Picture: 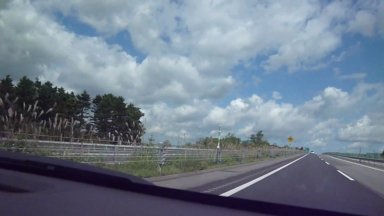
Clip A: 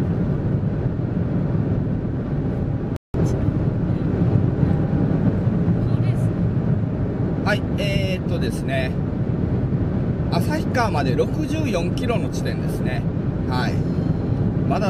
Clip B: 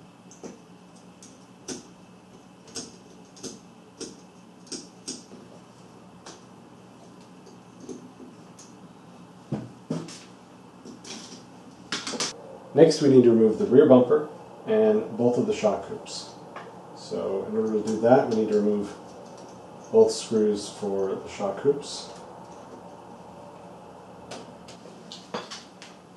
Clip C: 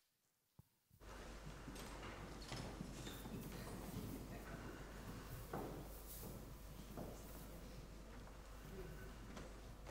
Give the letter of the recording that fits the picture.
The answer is A